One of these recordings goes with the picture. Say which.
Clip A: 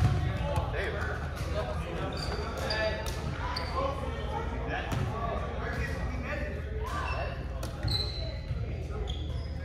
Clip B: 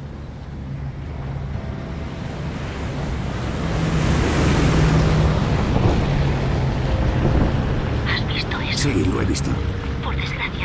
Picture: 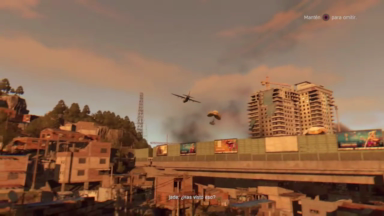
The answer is B